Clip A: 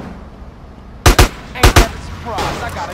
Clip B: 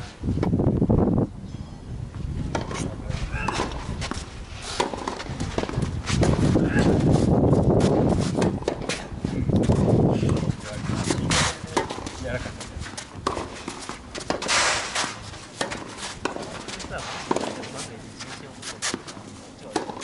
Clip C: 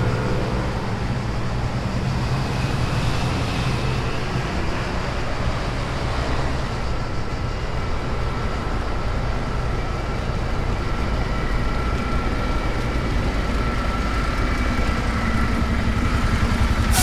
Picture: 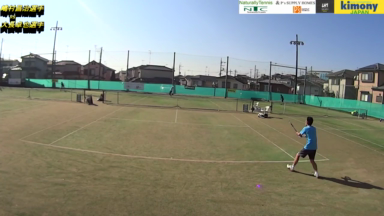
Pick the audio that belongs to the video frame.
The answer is B